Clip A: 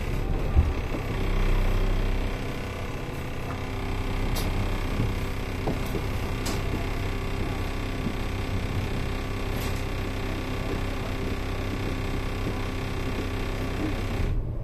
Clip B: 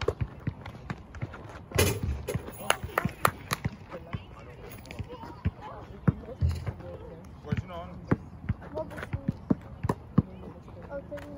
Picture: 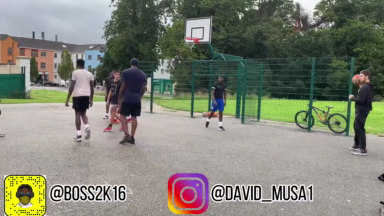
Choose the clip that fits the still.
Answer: B